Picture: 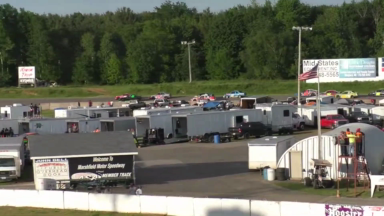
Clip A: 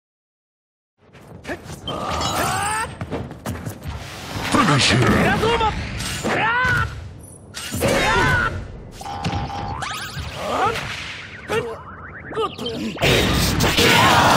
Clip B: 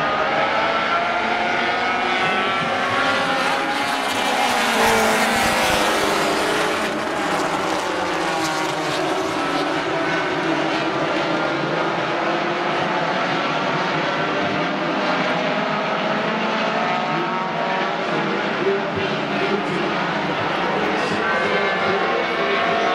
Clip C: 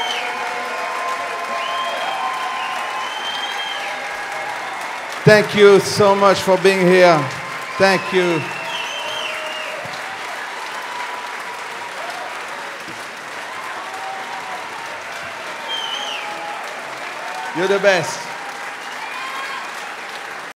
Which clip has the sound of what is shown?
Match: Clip B